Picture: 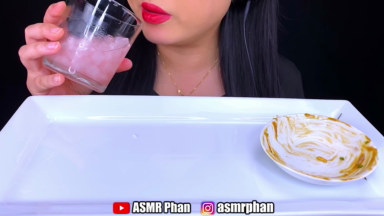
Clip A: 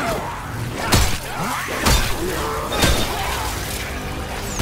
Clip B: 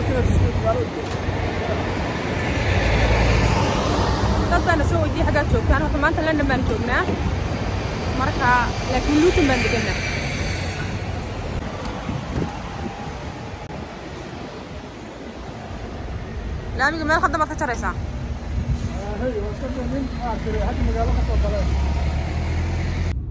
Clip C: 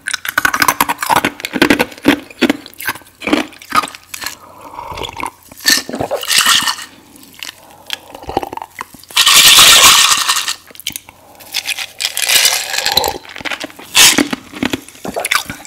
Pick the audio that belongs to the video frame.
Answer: C